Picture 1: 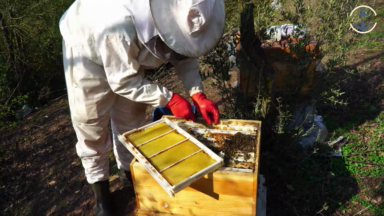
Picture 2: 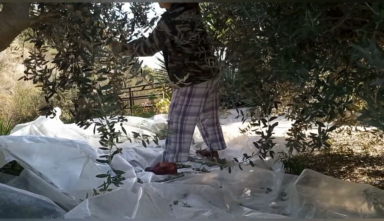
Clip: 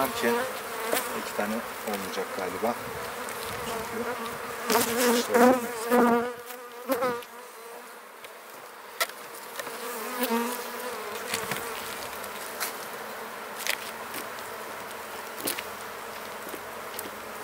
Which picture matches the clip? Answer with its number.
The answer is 1